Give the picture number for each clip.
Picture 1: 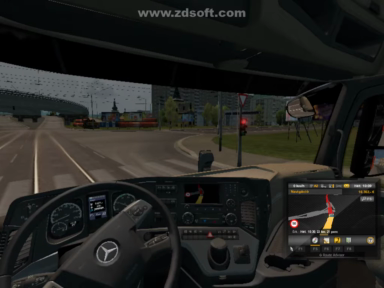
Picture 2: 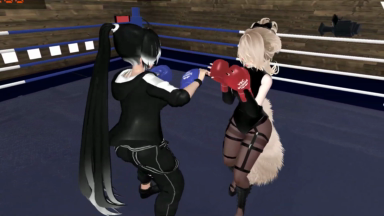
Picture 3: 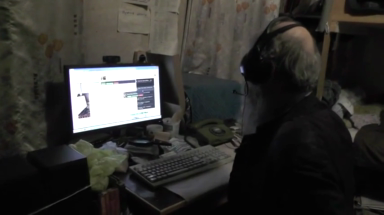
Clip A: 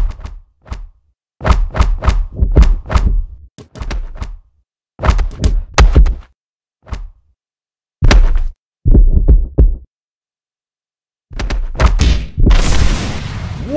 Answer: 2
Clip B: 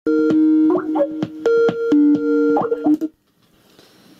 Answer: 3